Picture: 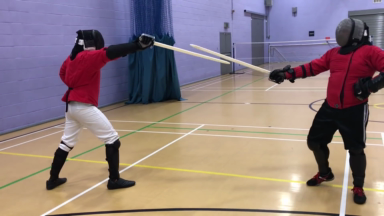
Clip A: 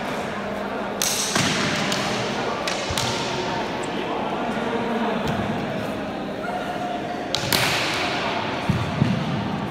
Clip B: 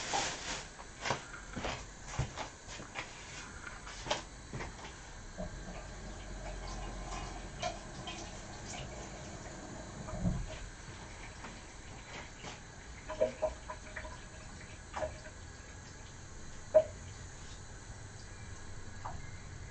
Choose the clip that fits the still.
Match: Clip A